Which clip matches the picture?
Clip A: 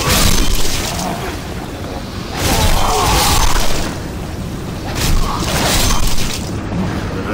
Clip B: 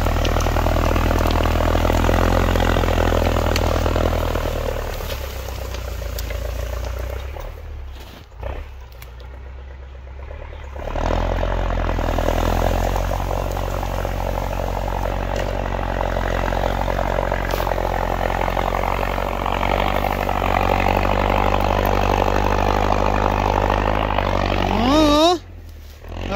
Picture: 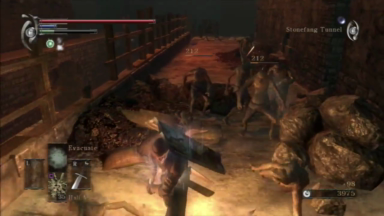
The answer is A